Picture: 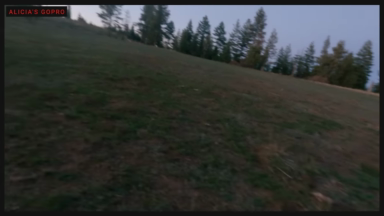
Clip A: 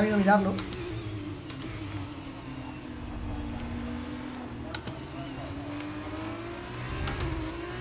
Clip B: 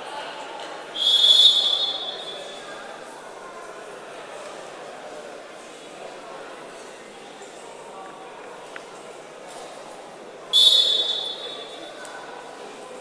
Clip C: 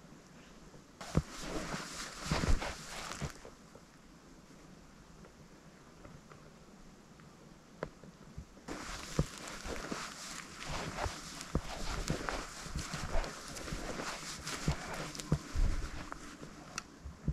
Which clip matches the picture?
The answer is C